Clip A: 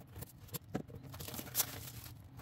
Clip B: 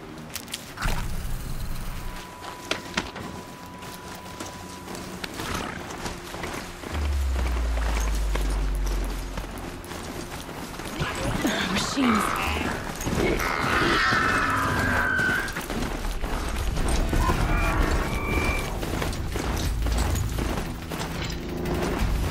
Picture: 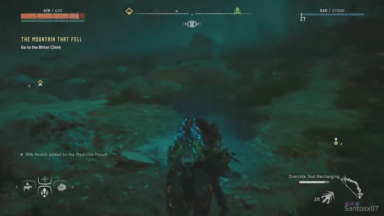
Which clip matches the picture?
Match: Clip B